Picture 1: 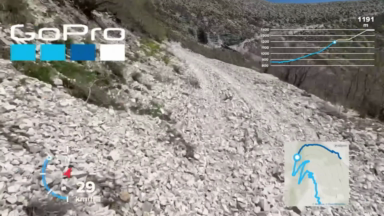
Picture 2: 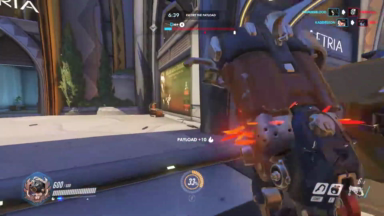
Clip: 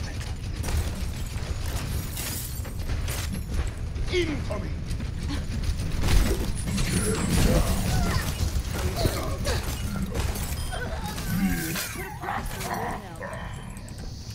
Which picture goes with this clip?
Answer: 2